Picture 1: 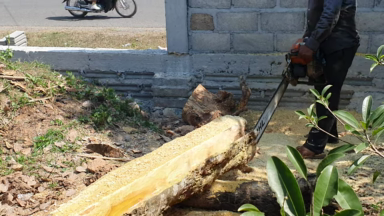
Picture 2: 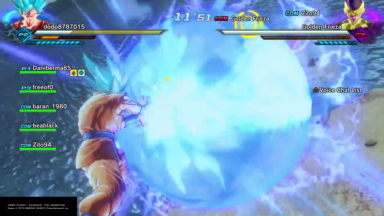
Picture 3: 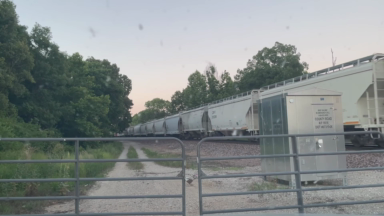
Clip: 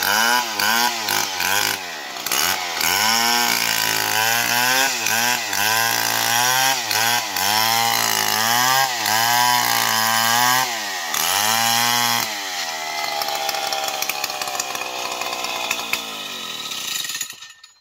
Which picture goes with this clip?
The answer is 1